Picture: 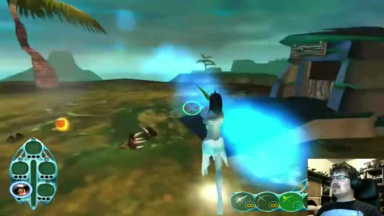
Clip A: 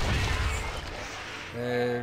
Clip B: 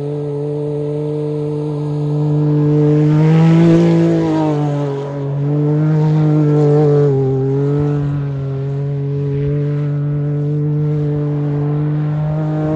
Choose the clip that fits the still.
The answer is A